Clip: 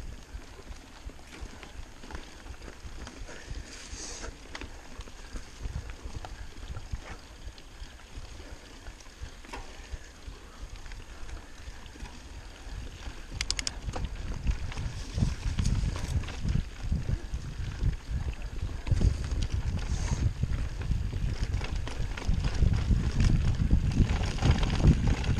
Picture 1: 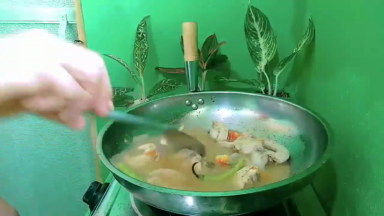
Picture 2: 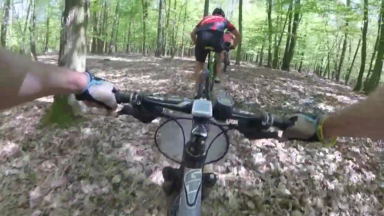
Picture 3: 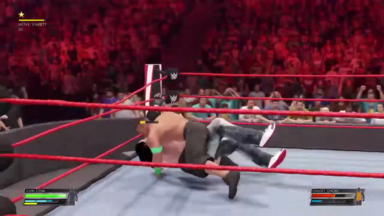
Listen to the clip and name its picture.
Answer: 2